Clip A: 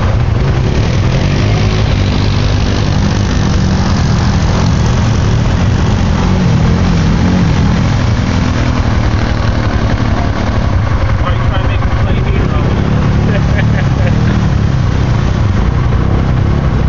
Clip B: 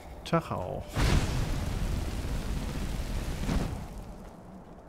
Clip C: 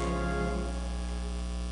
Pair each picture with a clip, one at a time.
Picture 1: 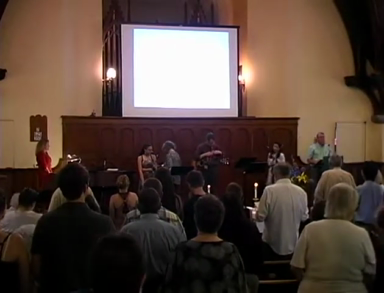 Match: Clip C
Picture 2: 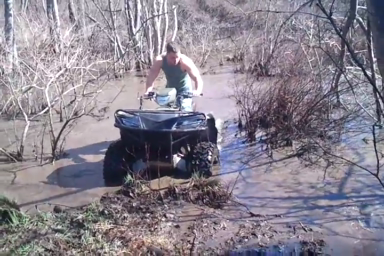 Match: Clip A